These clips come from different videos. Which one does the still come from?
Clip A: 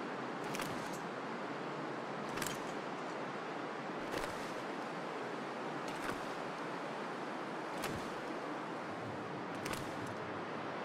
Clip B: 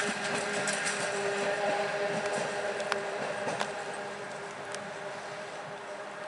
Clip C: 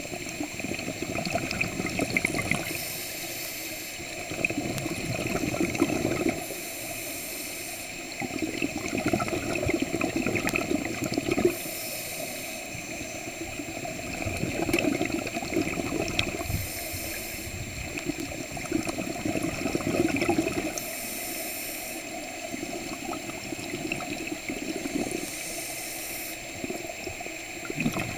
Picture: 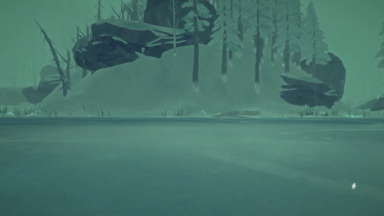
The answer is A